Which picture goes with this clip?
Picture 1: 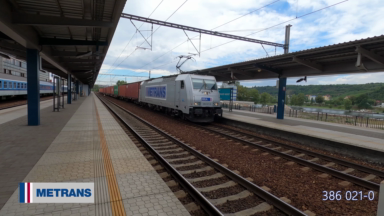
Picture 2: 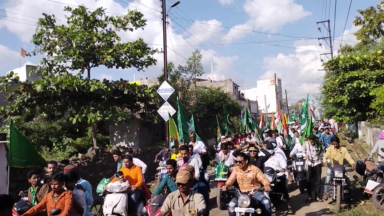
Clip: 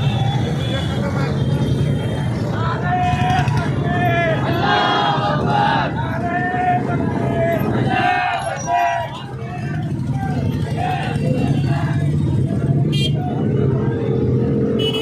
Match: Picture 2